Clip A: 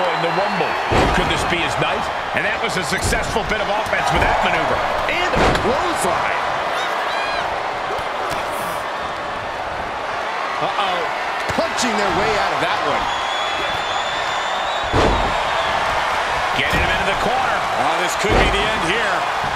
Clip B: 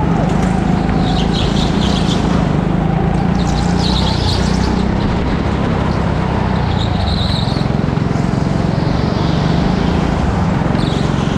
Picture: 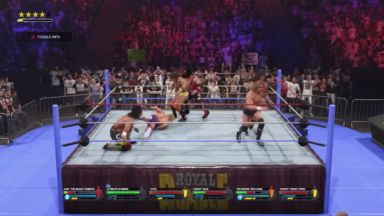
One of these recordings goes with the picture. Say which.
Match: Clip A